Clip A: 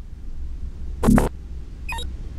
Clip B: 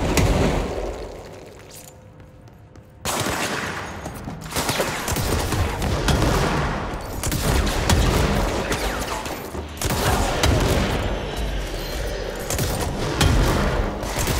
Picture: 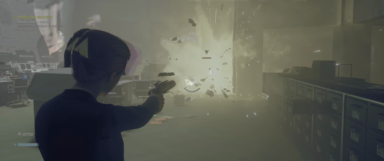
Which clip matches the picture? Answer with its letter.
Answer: B